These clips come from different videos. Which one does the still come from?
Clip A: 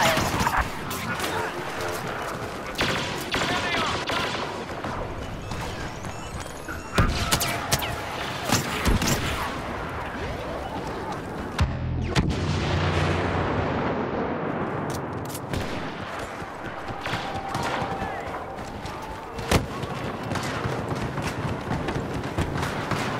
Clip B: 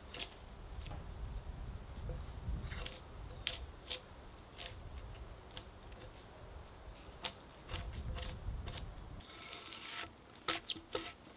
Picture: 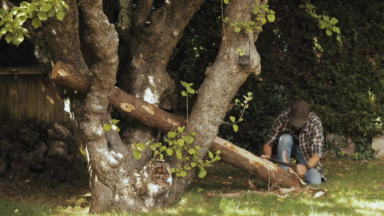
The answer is B